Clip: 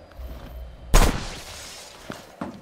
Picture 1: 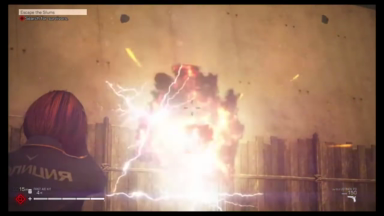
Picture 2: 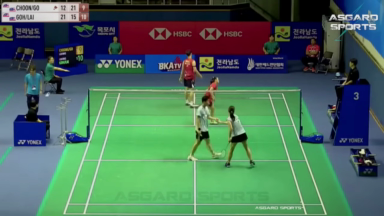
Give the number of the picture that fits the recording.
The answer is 1